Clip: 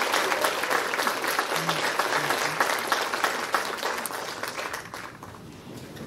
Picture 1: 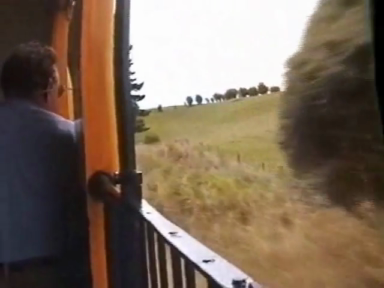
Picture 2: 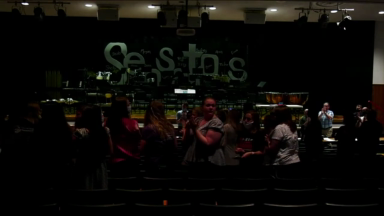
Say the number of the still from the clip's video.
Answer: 2